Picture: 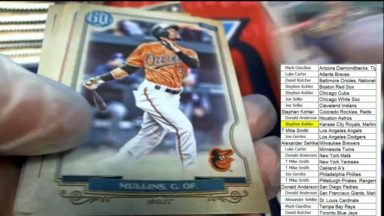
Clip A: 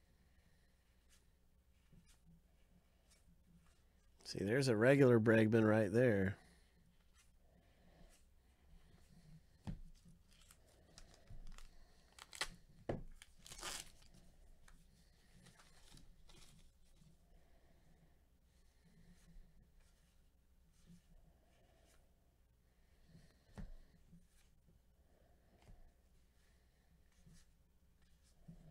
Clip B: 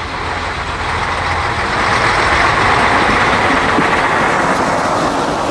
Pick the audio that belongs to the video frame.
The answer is A